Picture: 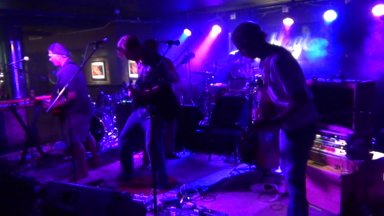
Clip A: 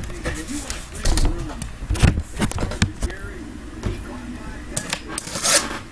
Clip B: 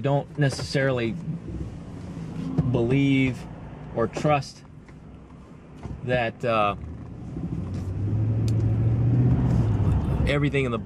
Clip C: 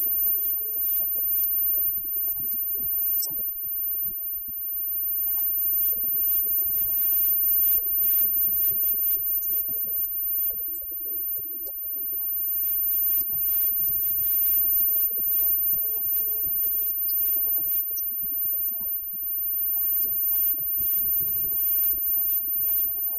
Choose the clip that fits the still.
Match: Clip C